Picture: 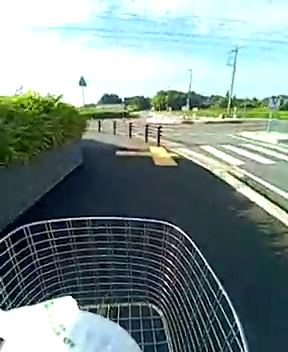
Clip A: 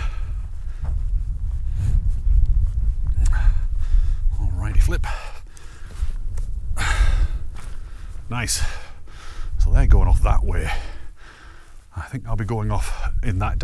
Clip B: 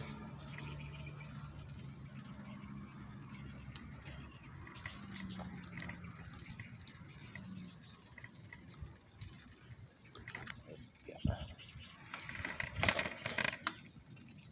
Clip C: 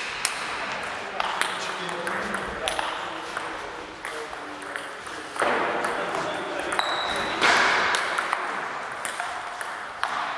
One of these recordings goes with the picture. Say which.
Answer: B